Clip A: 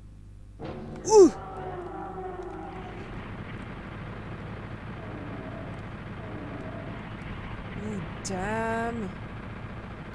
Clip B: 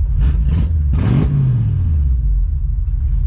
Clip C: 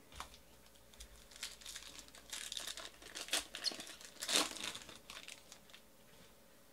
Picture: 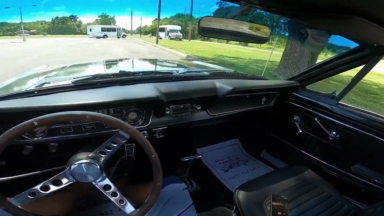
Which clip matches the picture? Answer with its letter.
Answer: B